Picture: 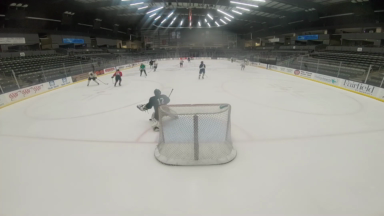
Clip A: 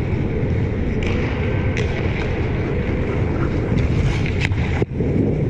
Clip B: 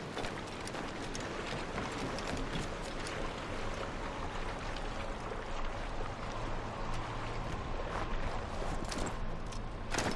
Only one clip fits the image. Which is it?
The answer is A